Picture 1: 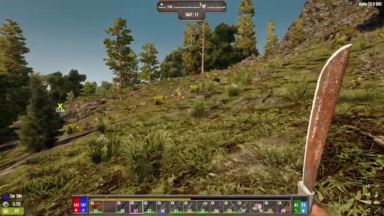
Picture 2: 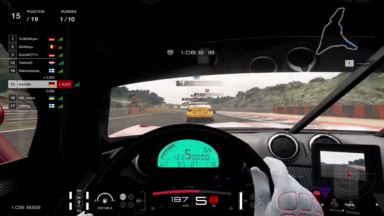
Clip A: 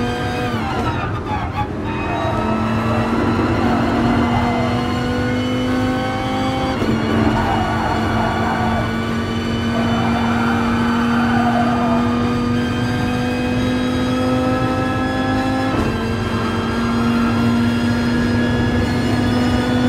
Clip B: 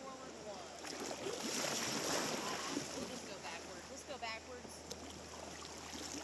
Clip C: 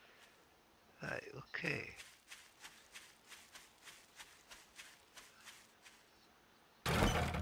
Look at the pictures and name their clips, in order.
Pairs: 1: C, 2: A